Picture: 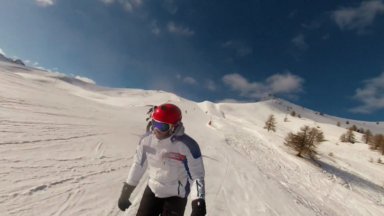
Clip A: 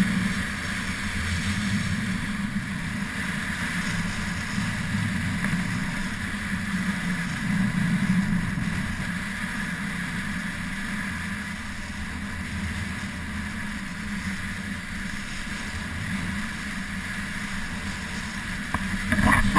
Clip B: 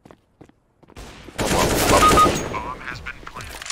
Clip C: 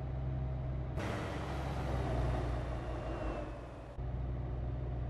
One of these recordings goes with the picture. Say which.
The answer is A